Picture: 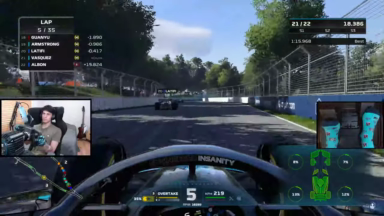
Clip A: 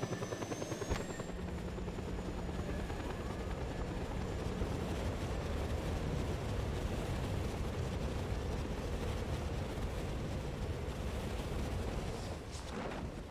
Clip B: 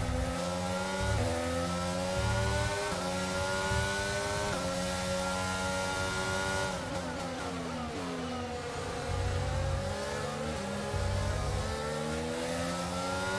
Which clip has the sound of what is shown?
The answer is B